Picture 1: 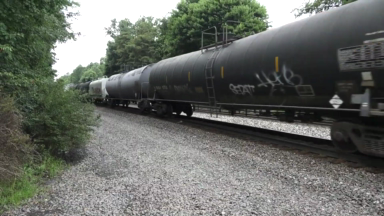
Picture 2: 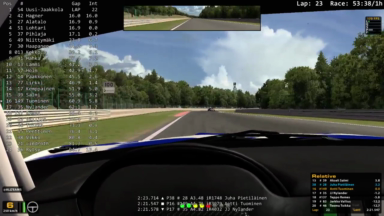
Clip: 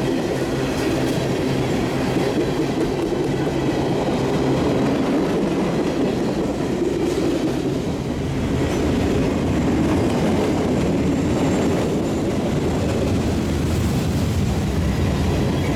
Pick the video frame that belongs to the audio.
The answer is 1